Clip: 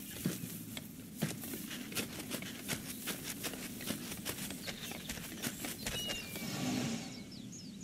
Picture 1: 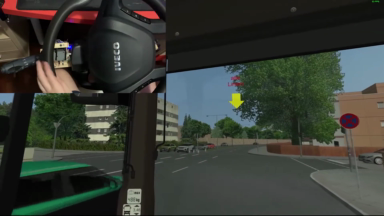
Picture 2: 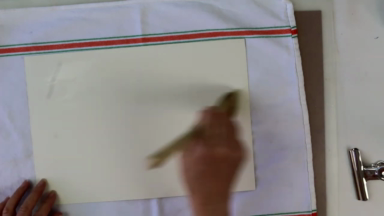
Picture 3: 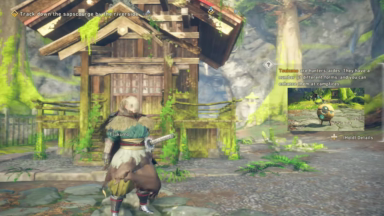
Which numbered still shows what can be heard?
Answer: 3